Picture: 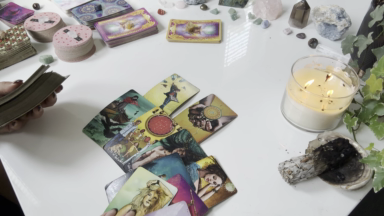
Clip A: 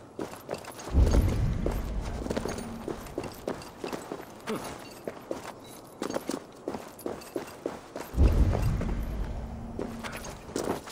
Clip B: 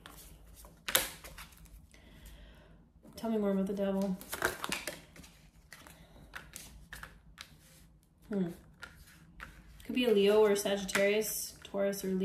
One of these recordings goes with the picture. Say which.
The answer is B